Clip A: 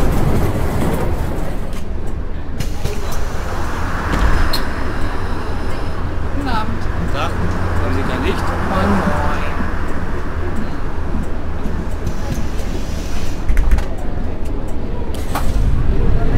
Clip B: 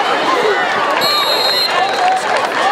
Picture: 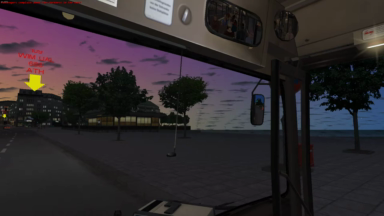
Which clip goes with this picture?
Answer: A